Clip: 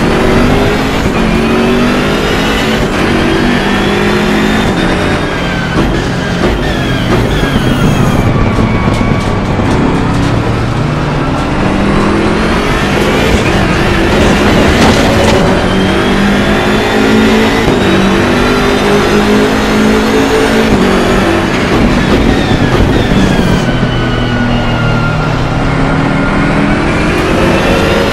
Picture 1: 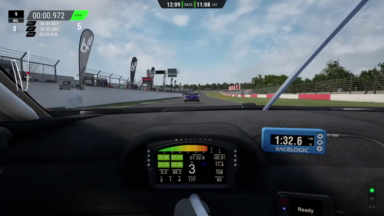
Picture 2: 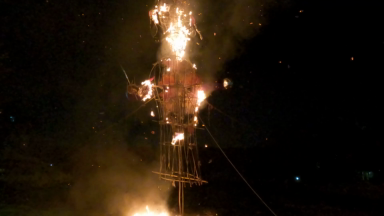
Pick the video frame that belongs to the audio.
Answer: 1